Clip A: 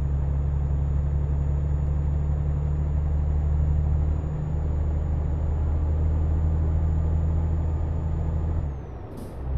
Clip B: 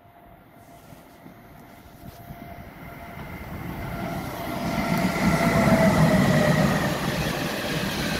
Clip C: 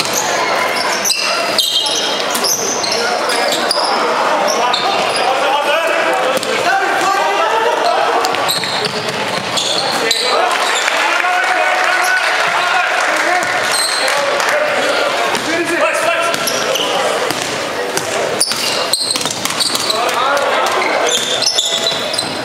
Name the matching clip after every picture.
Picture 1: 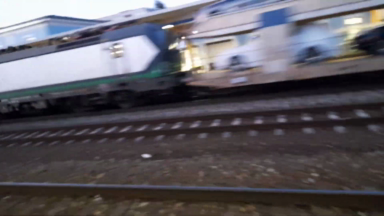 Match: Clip B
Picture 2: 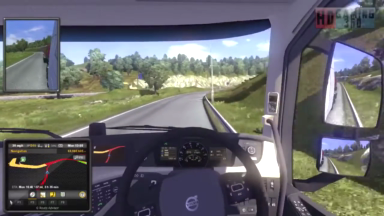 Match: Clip A